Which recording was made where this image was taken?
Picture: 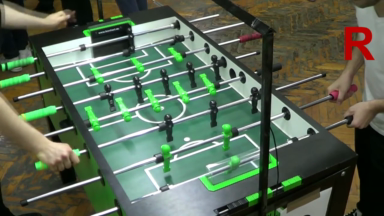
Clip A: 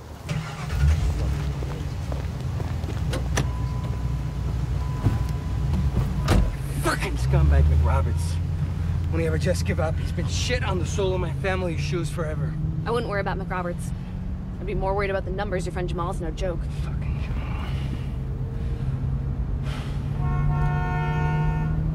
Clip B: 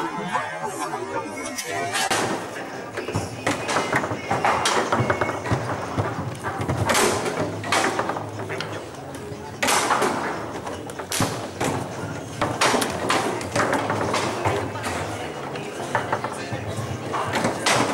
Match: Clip B